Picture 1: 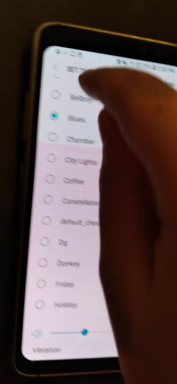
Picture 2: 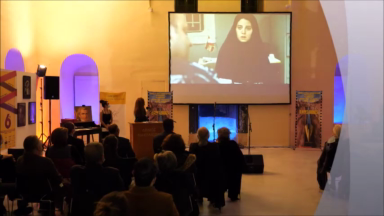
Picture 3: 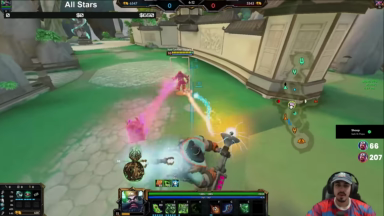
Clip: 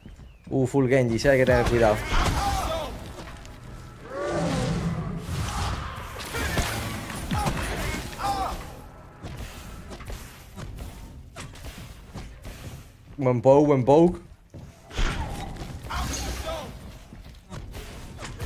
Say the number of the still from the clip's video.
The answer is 3